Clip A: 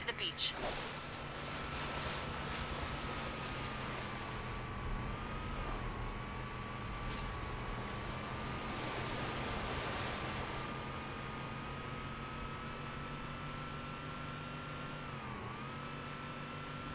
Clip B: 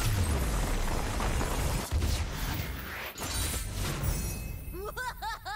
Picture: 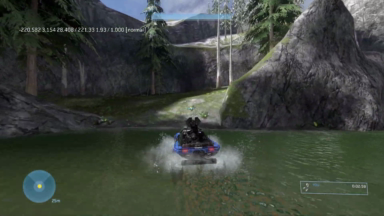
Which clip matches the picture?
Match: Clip A